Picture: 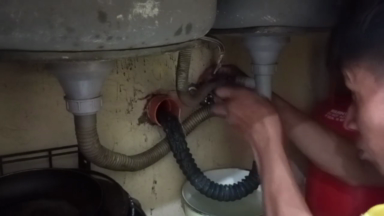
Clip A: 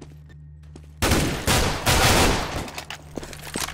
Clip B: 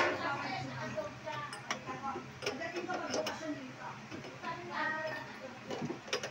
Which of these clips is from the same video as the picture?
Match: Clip B